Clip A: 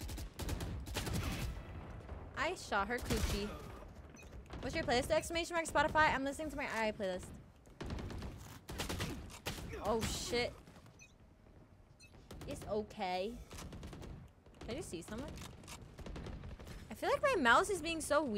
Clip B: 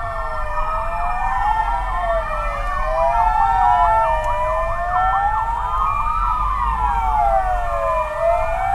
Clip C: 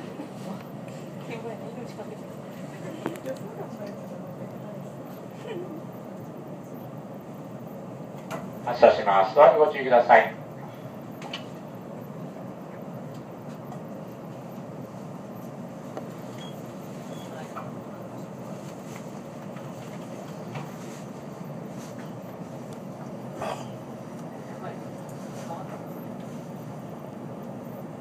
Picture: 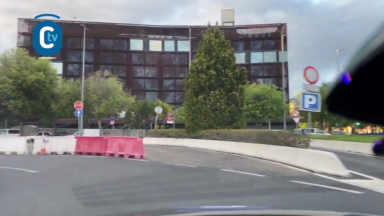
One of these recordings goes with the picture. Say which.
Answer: B